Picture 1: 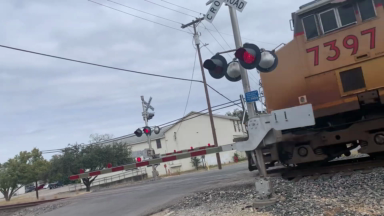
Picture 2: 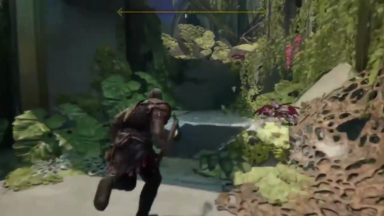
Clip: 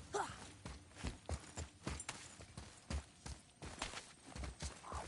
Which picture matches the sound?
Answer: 2